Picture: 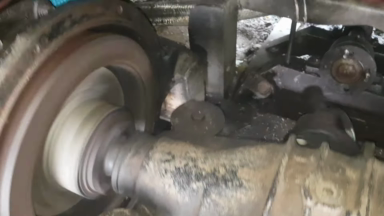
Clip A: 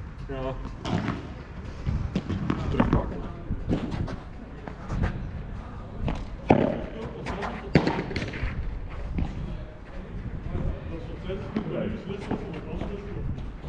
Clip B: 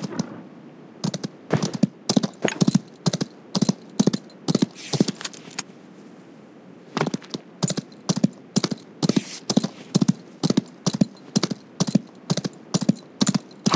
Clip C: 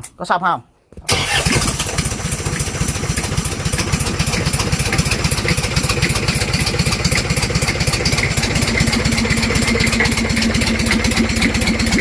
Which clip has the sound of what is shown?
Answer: C